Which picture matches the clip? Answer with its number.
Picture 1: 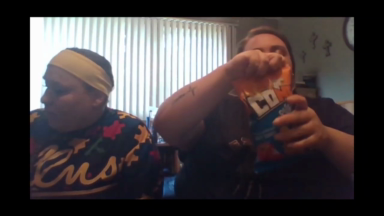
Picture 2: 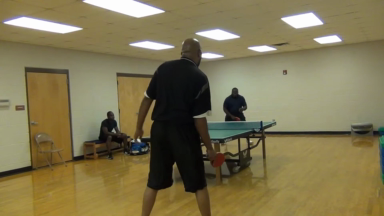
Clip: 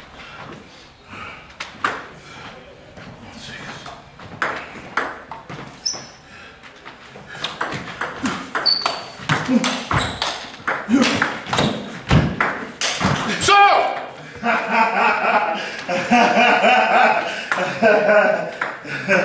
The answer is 2